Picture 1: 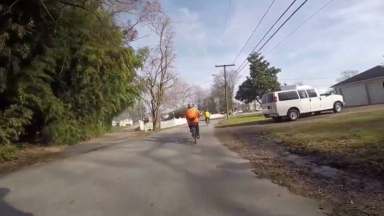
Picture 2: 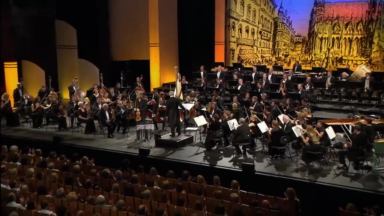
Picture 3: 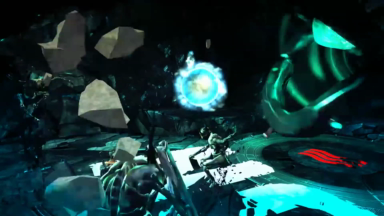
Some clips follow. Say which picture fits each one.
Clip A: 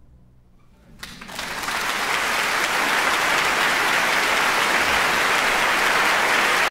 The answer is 2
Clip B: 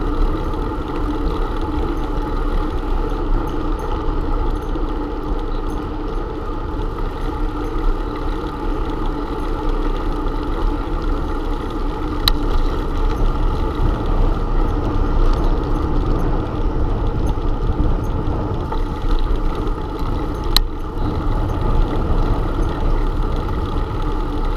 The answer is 1